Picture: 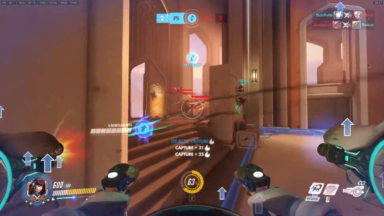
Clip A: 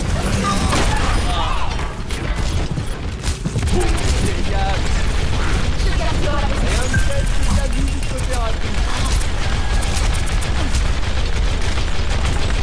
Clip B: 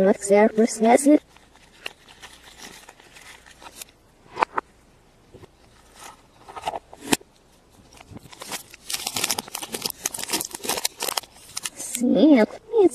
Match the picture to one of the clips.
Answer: A